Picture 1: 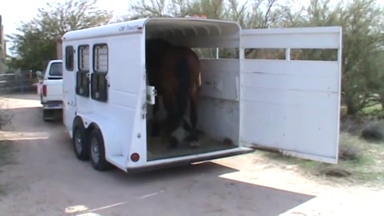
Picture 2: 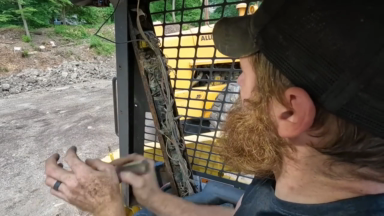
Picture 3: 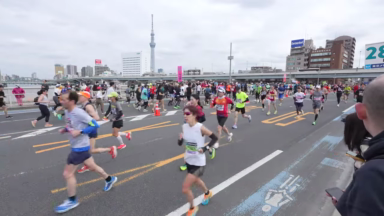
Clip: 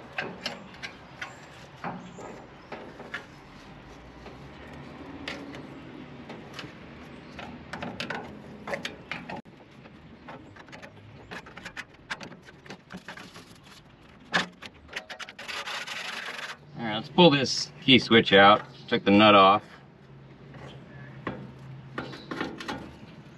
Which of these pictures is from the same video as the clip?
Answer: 2